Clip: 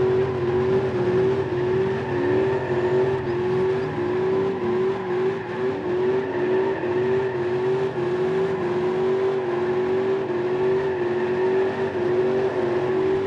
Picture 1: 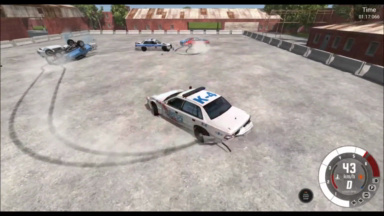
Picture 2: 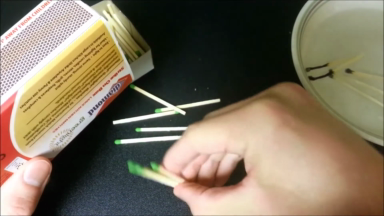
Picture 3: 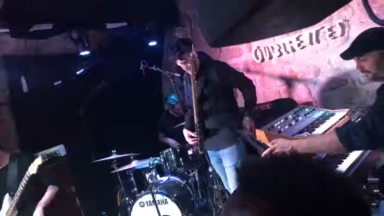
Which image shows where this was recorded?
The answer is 1